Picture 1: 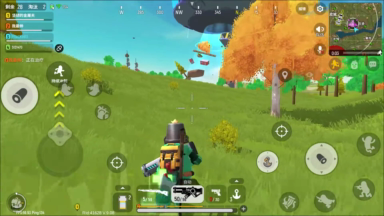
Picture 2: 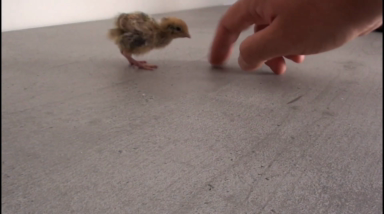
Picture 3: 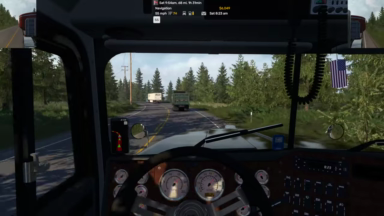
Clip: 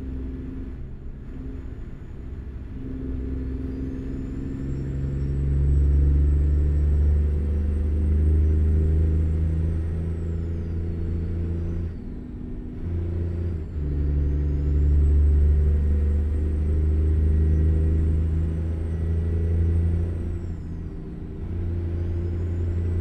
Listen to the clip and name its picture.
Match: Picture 3